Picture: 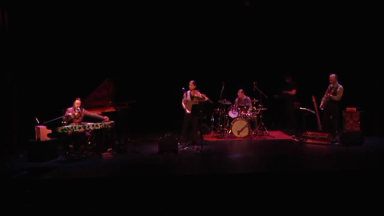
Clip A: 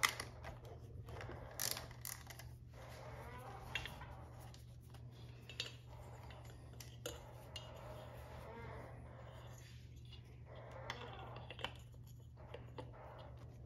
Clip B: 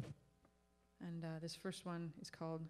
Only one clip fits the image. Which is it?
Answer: B